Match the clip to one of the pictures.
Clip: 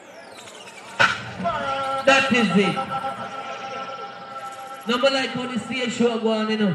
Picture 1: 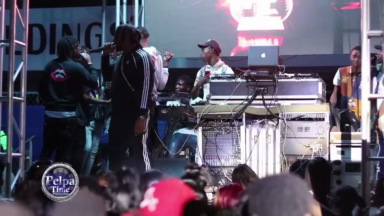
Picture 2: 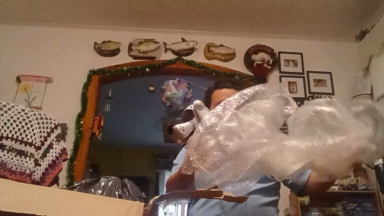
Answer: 1